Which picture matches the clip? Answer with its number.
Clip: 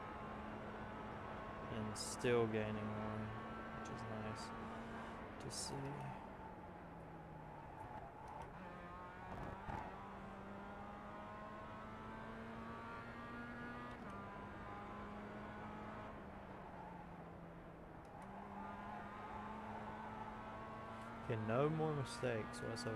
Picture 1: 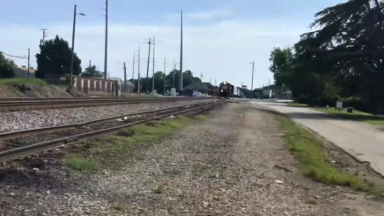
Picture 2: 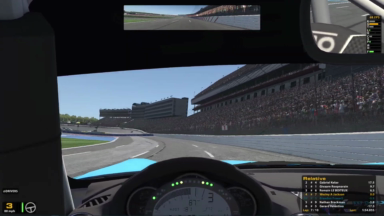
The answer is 2